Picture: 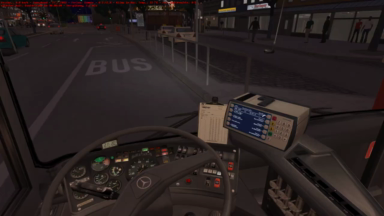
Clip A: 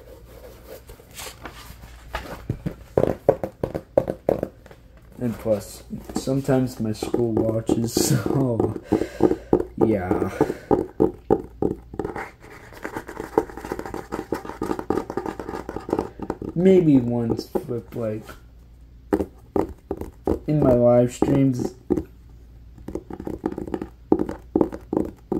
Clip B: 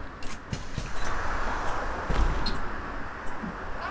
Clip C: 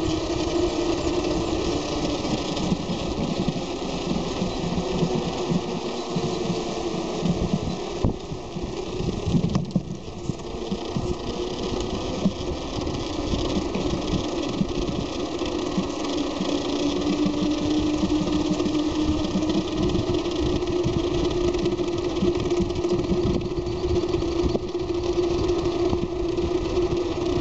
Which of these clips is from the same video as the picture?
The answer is B